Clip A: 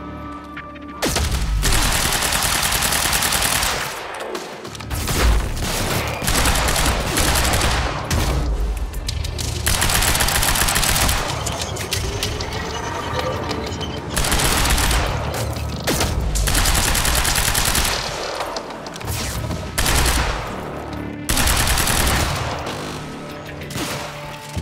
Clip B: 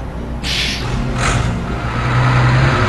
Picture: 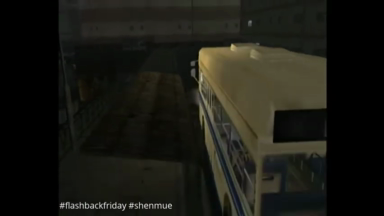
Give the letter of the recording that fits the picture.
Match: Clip B